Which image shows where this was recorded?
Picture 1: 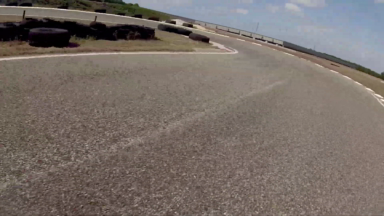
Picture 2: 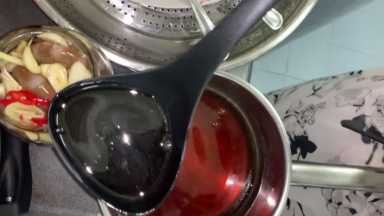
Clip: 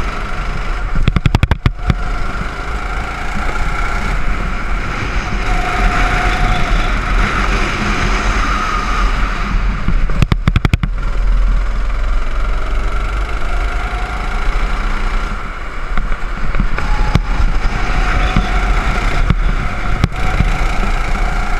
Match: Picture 1